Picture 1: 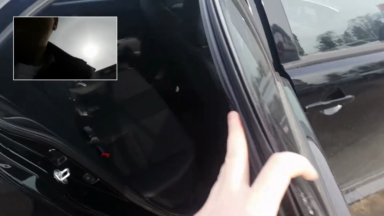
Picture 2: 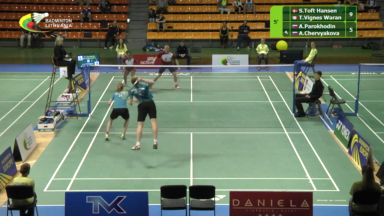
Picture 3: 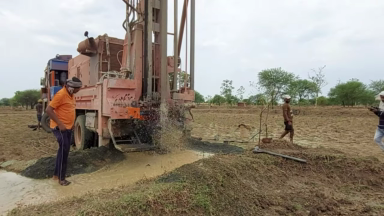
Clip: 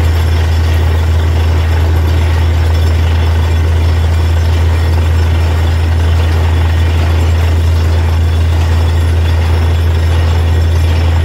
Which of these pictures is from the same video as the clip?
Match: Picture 3